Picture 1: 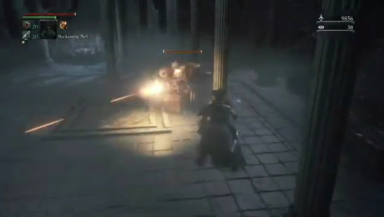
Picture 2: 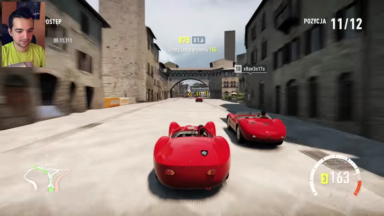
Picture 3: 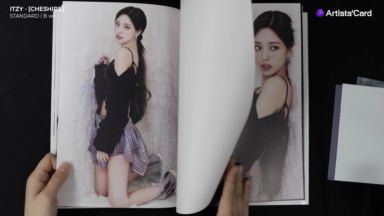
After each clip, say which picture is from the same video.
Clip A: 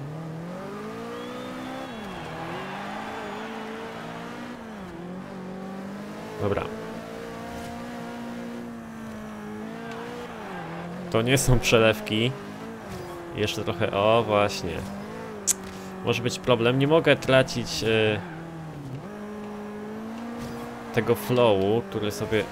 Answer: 2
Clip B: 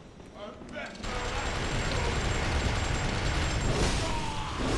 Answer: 1